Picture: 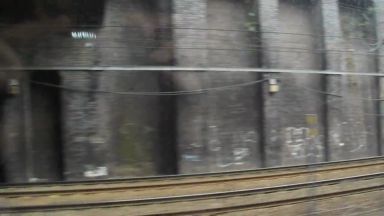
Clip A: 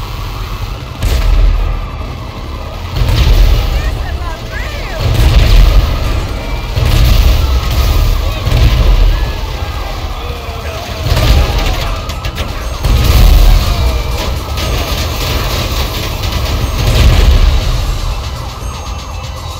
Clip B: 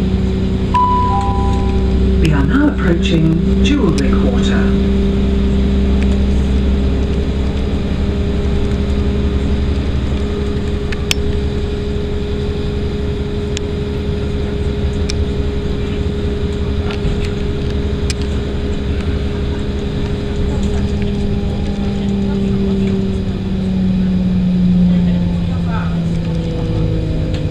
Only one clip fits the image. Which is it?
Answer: B